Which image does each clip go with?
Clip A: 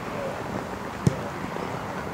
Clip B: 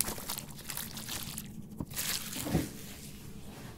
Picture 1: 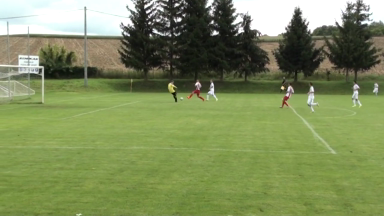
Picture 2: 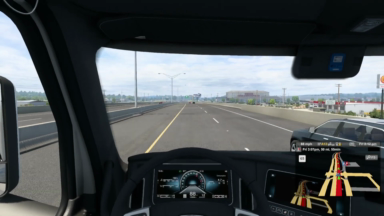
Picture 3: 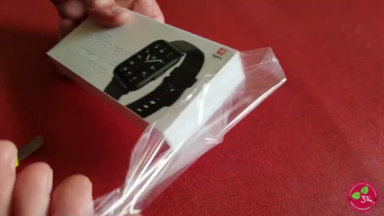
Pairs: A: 1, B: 3